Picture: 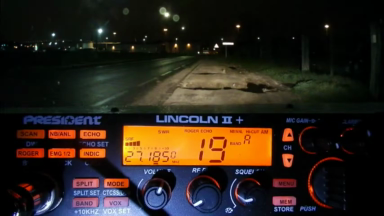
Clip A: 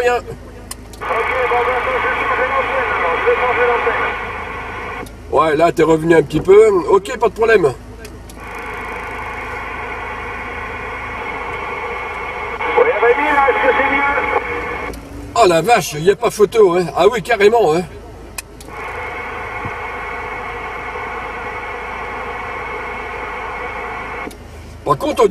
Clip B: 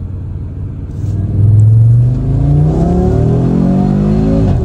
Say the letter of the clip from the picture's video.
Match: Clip A